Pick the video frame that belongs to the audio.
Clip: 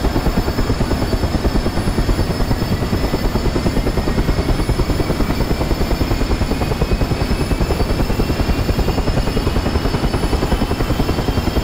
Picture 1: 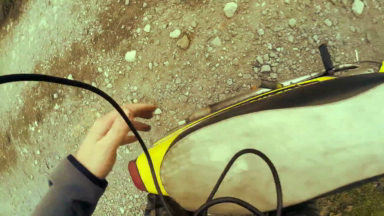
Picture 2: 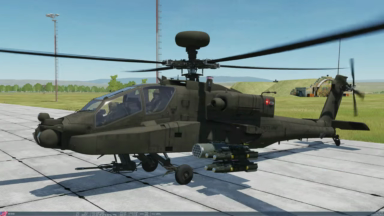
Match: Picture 2